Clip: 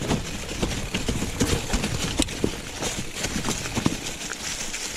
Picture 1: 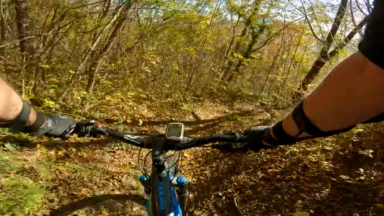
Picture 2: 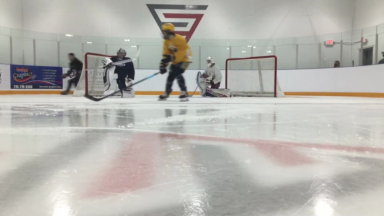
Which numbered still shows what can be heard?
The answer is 1